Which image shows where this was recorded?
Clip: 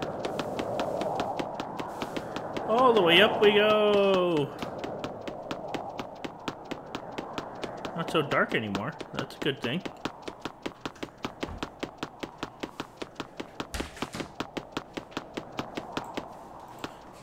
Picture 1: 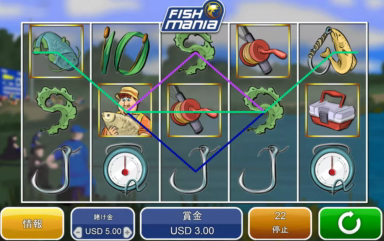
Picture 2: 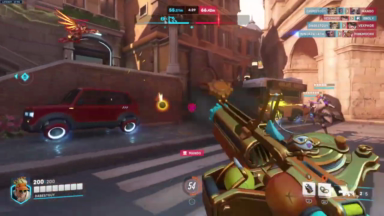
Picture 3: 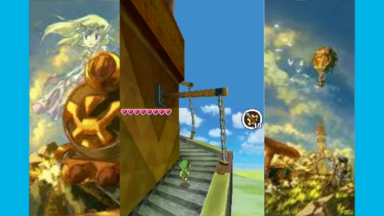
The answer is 3